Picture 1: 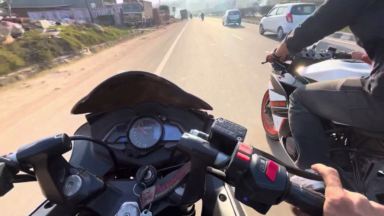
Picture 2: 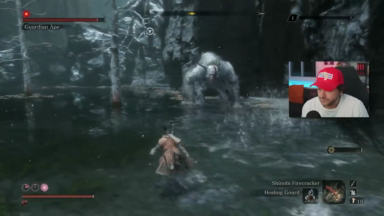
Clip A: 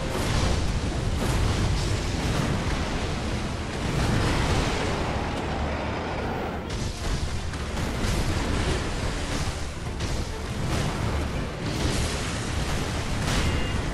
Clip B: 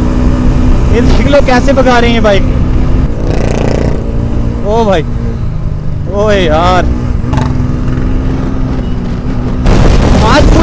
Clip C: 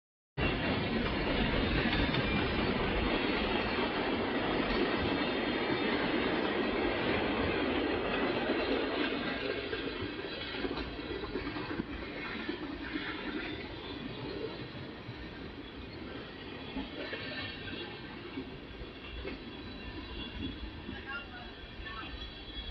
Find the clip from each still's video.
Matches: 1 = B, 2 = A